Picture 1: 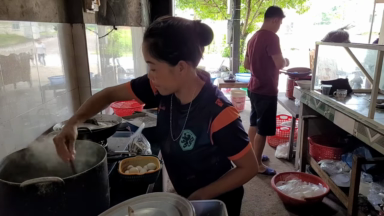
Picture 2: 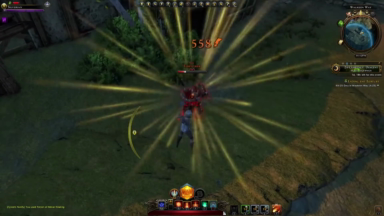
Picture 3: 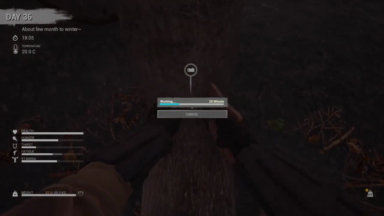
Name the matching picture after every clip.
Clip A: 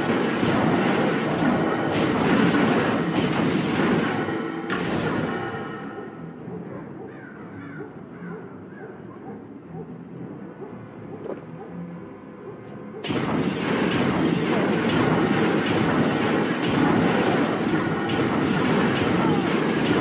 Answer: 2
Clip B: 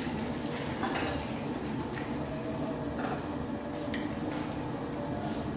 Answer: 1